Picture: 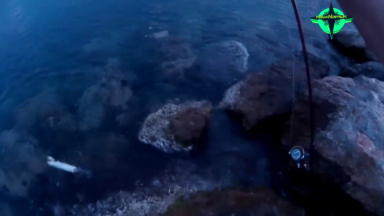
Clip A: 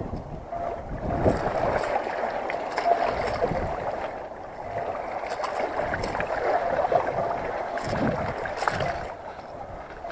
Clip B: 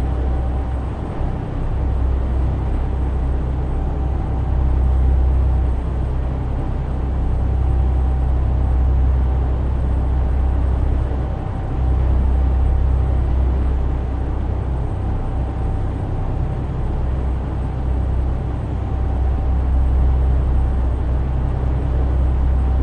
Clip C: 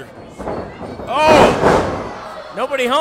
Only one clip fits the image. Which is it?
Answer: A